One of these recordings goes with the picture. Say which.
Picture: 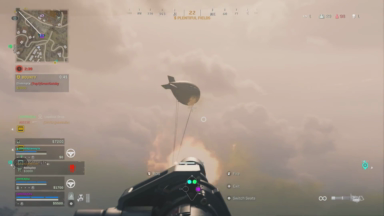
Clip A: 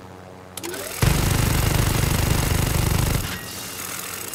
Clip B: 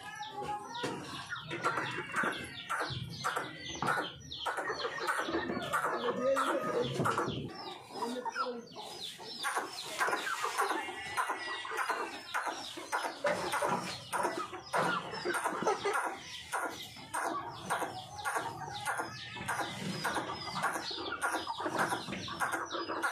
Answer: A